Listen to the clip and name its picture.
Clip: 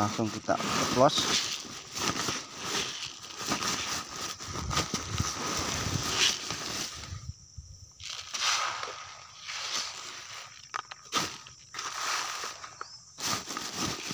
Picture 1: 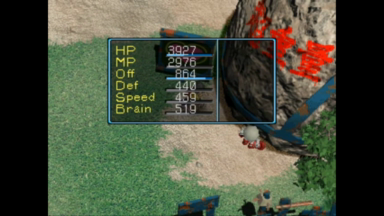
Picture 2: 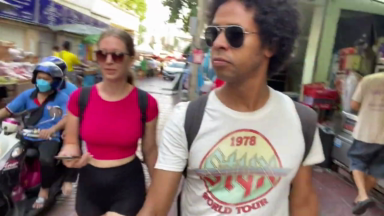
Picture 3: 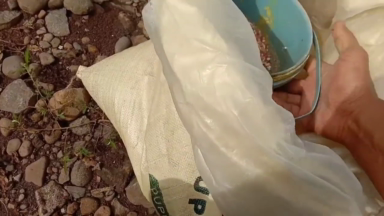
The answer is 3